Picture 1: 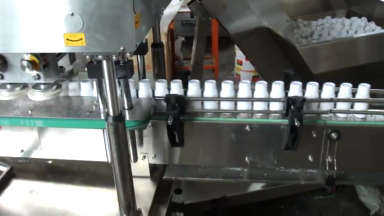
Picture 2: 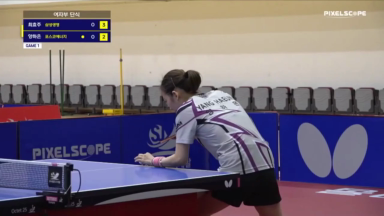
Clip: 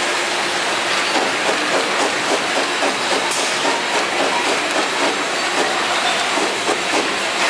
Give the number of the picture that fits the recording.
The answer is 1